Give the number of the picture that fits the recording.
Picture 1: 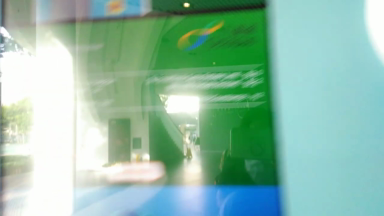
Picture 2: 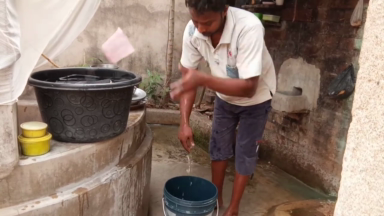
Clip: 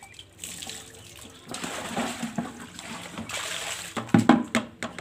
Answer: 2